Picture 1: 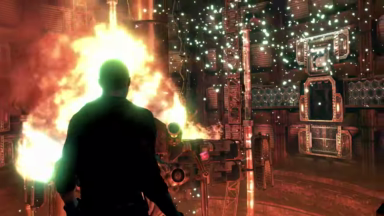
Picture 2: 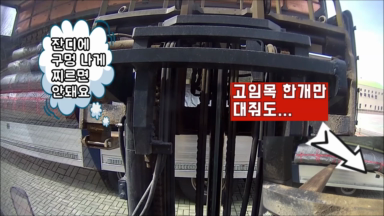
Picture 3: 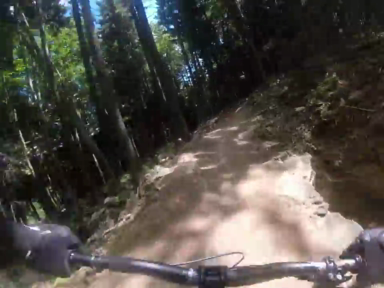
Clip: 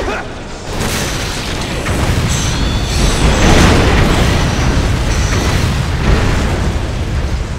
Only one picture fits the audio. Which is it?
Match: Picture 1